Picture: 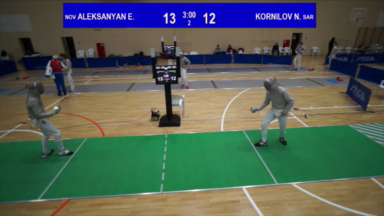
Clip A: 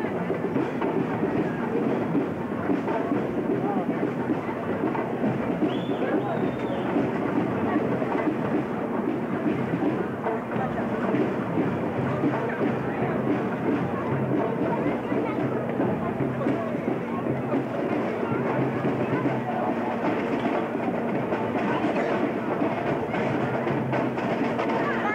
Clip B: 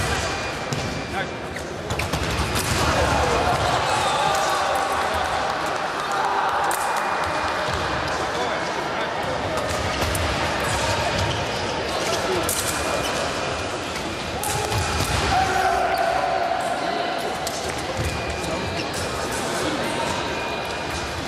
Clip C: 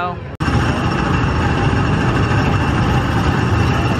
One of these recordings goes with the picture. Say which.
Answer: B